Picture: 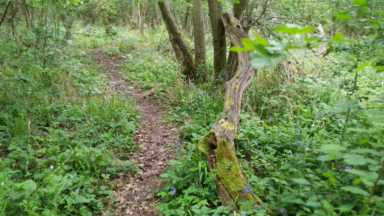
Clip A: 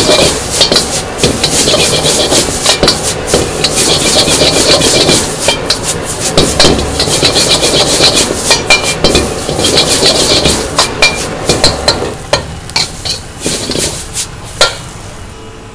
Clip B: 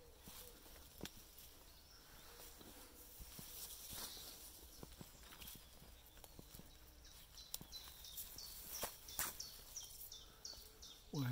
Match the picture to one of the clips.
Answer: B